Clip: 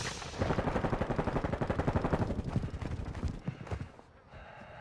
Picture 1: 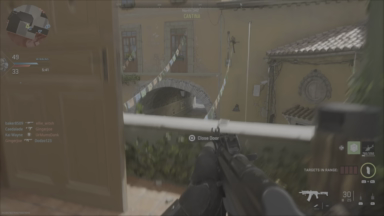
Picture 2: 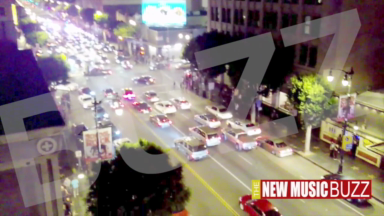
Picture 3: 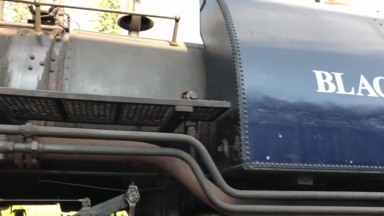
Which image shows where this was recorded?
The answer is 1